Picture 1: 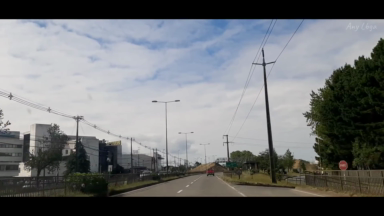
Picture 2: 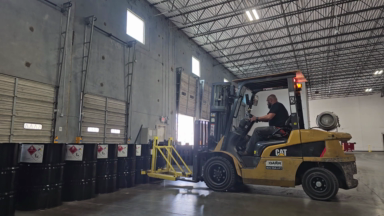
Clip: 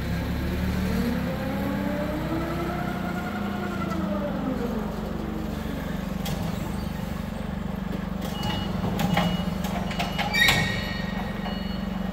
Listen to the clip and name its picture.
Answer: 2